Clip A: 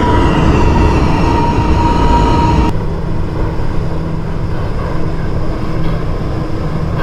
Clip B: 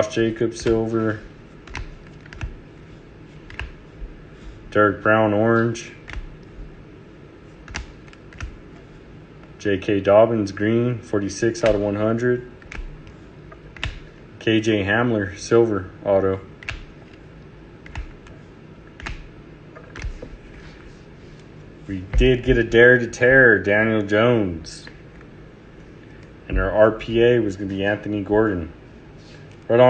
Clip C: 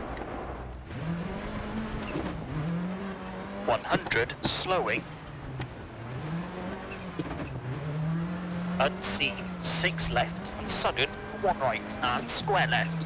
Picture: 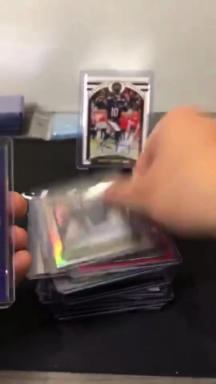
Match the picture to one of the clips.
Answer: B